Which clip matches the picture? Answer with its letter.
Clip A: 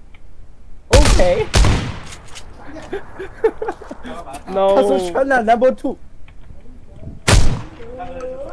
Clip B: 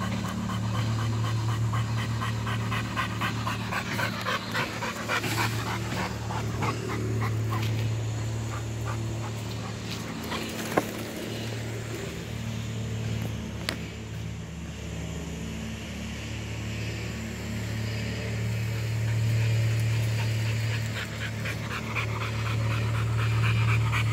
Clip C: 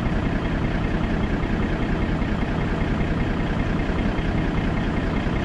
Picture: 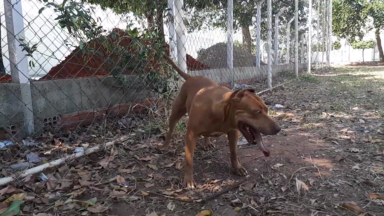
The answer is B